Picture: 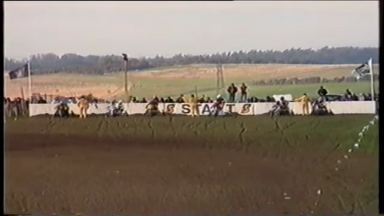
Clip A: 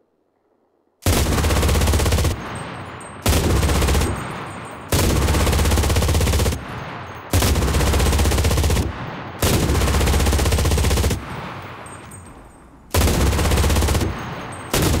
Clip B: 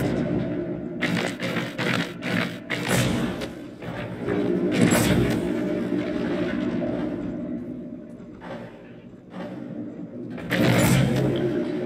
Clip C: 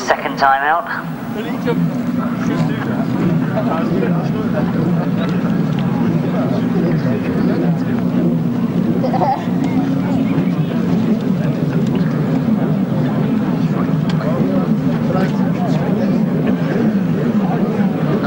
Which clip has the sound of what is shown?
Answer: C